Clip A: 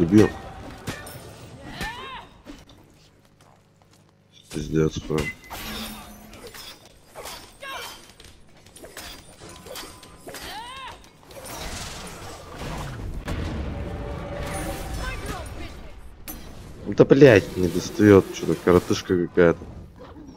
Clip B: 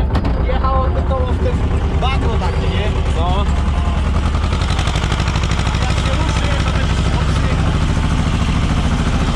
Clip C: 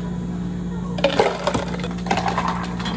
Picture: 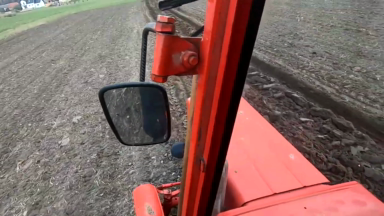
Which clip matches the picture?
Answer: B